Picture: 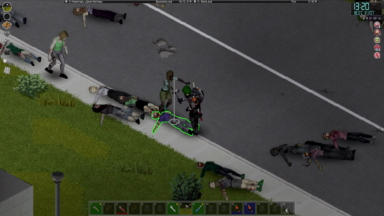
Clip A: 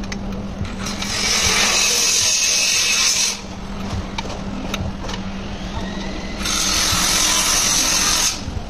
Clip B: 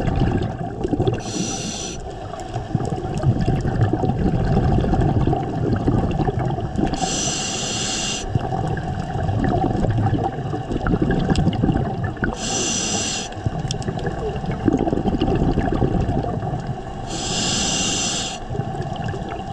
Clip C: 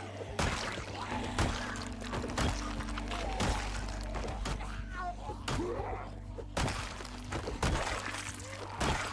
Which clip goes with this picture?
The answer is C